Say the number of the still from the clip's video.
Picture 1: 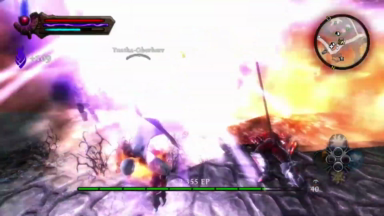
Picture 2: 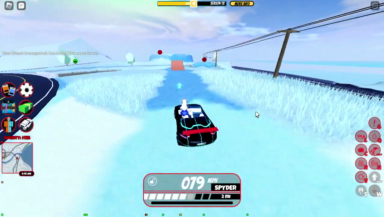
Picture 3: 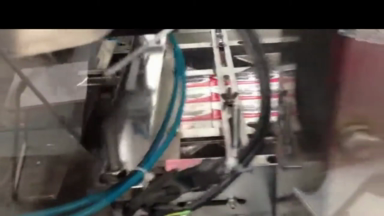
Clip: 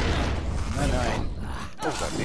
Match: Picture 1